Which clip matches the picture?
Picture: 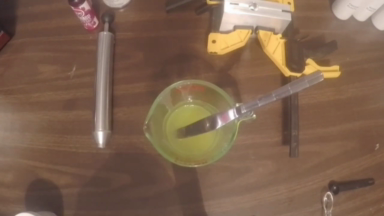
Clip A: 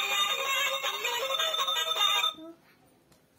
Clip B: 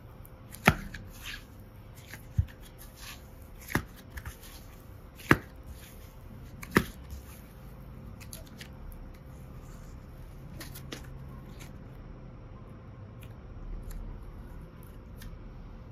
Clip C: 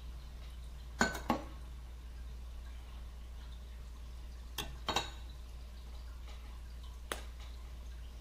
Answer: C